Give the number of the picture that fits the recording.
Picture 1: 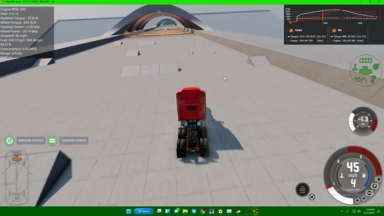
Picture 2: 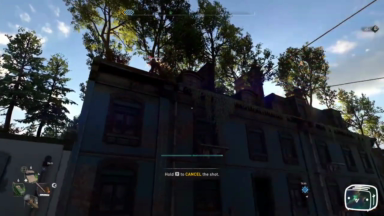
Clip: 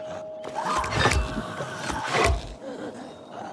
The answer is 2